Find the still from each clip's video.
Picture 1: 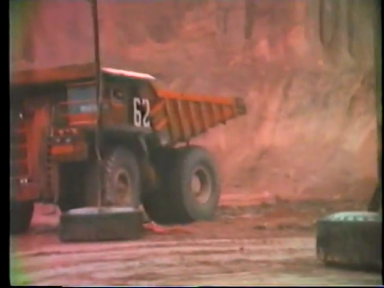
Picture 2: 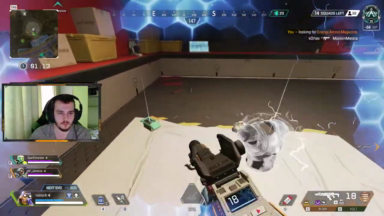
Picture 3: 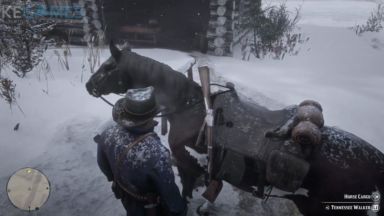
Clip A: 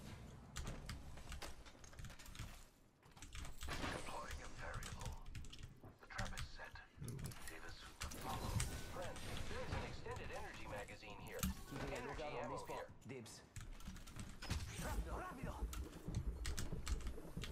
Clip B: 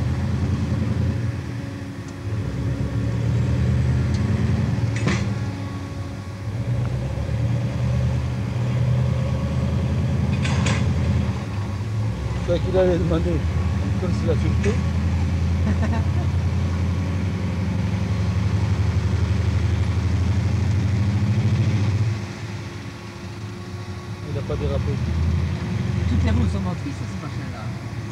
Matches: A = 2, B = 1